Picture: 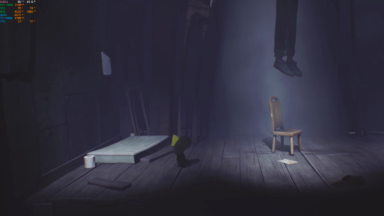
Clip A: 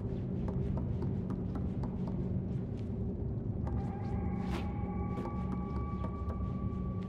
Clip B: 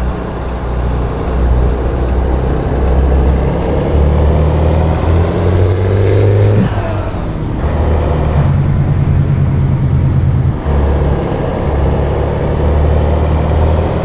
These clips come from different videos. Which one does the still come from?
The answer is A